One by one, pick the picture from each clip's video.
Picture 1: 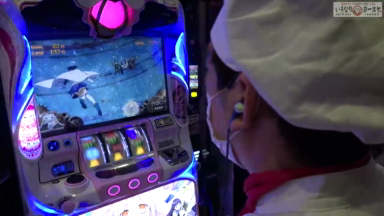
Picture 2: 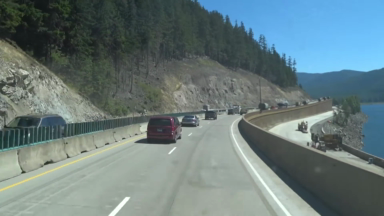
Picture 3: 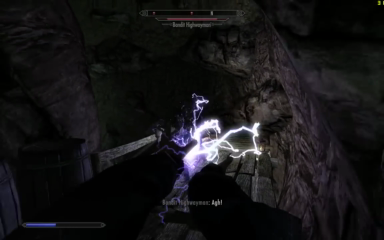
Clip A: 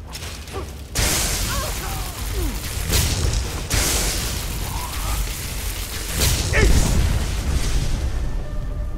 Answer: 3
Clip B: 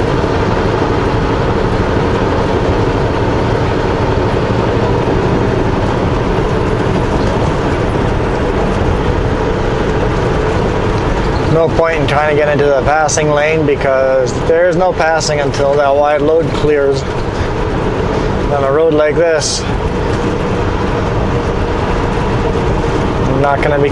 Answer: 2